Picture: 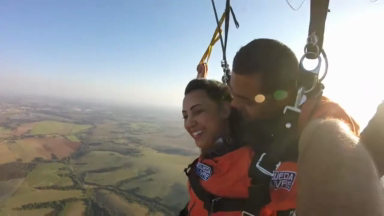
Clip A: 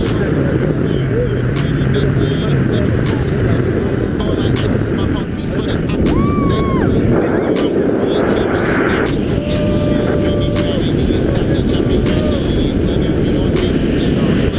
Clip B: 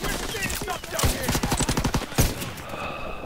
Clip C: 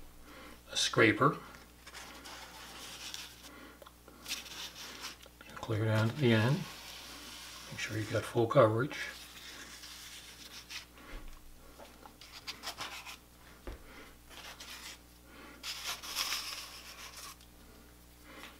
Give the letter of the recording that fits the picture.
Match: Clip A